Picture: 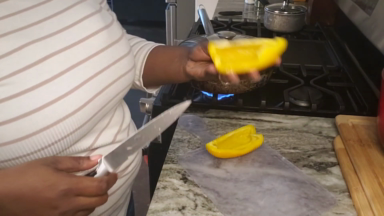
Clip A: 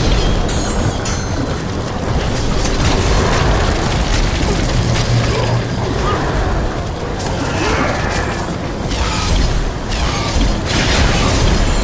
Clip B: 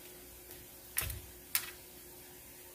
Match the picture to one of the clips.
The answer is B